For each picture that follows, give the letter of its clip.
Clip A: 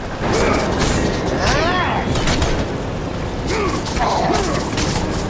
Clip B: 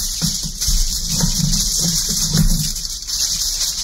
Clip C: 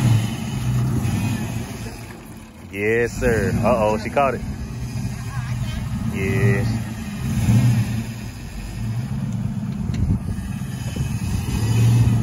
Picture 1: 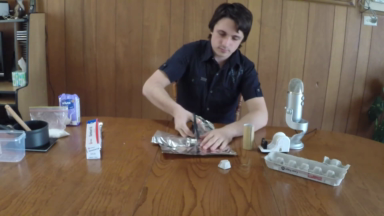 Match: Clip B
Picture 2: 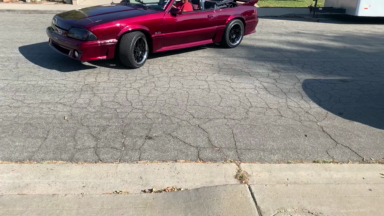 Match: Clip C